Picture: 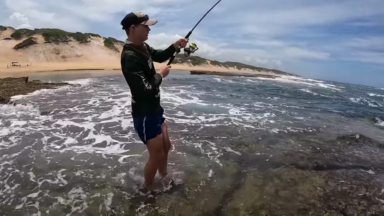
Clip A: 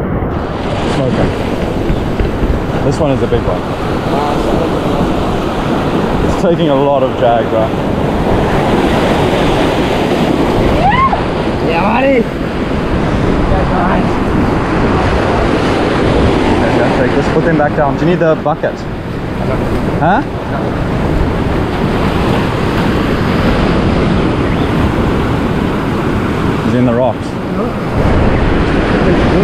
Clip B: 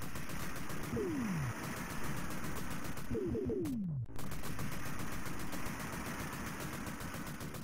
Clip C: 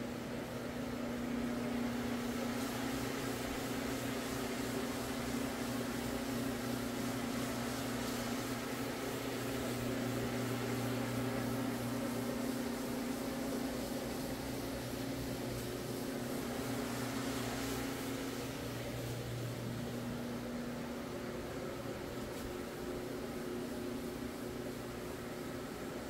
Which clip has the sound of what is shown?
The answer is A